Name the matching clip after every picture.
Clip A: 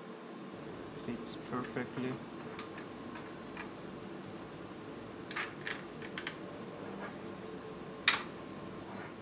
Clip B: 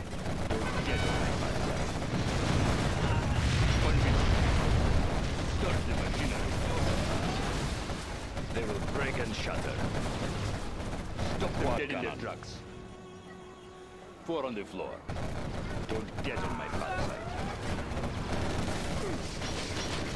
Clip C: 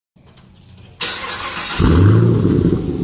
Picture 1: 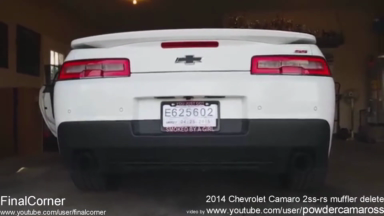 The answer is C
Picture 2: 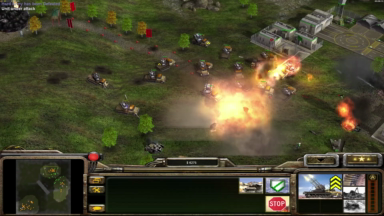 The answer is B